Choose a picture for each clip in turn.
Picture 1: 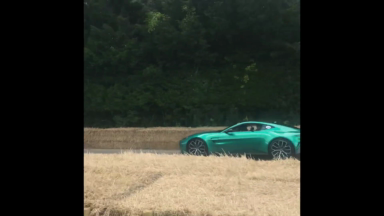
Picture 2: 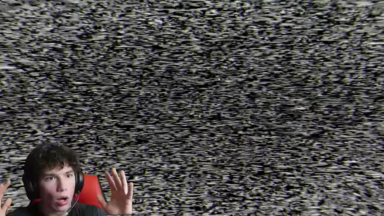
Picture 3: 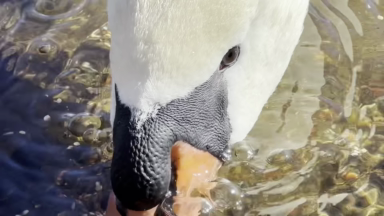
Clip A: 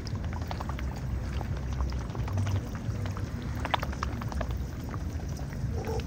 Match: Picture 3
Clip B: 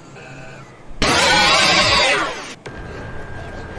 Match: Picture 2